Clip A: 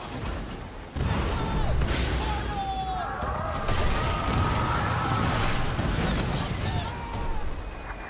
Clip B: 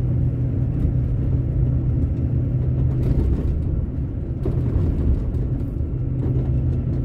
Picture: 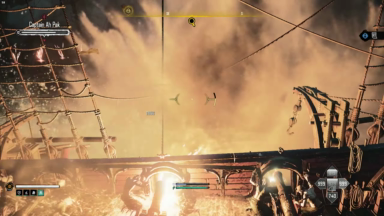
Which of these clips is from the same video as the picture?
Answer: A